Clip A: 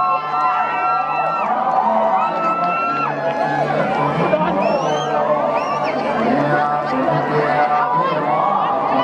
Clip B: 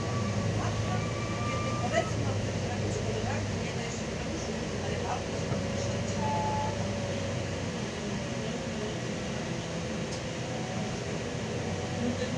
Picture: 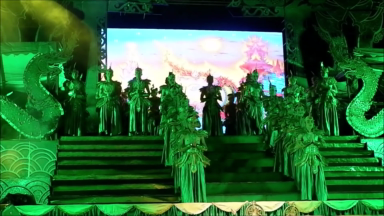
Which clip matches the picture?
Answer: A